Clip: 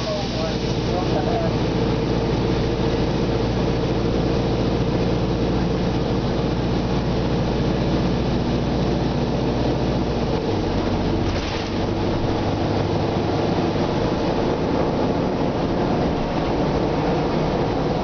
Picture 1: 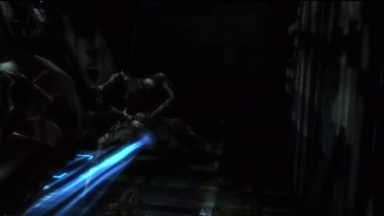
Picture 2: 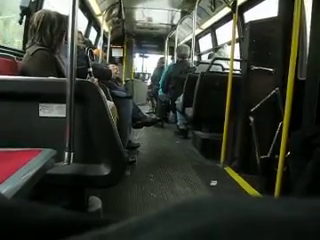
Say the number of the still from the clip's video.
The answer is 2